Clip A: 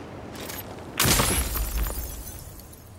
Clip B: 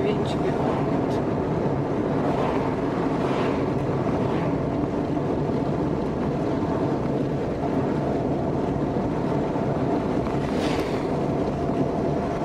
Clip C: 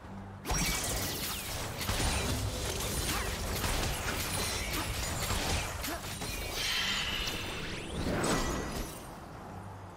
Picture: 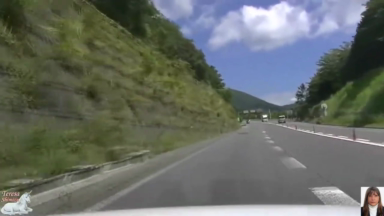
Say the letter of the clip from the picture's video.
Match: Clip B